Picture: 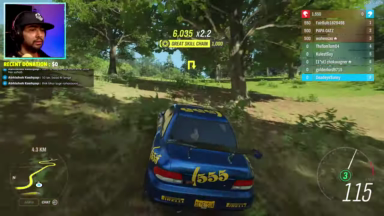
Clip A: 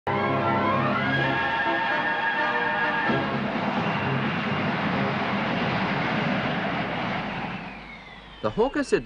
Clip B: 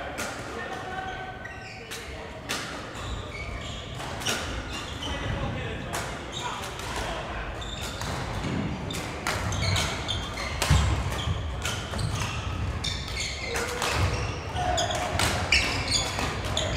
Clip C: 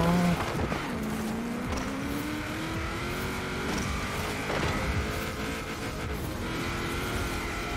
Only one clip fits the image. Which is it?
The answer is C